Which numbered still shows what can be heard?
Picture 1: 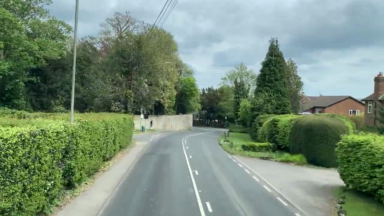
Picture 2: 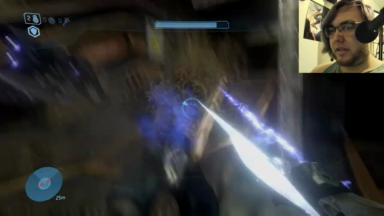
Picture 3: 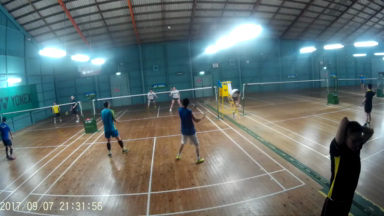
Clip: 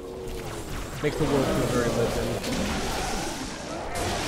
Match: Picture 2